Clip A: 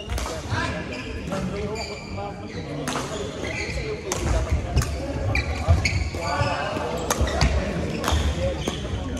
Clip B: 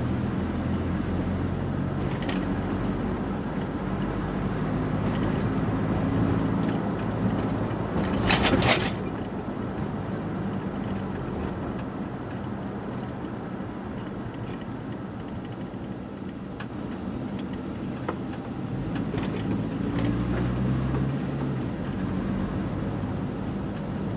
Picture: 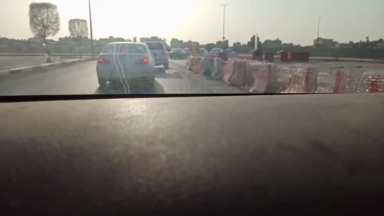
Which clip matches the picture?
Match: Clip B